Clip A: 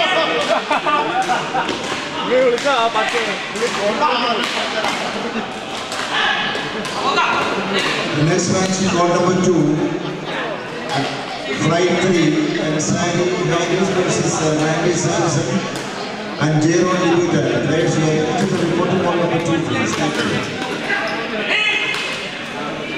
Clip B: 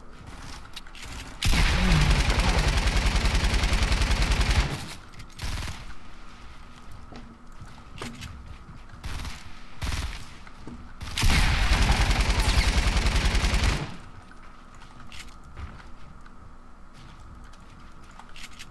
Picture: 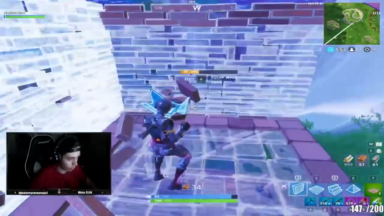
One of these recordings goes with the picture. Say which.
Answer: B